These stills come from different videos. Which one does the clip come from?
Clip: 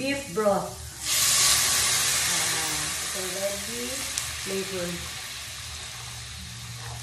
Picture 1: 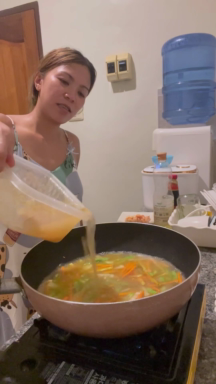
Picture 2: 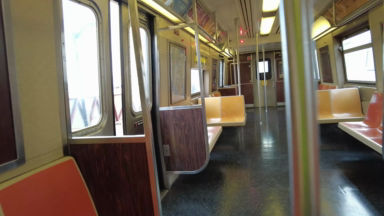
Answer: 1